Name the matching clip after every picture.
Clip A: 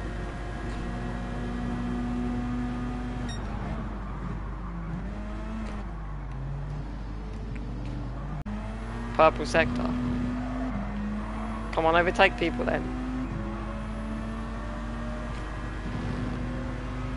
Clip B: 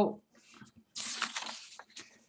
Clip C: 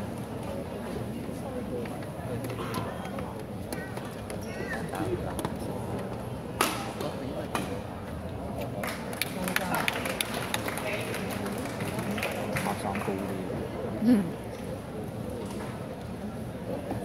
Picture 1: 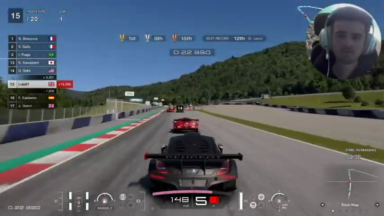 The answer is A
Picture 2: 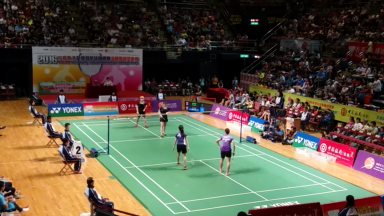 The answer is C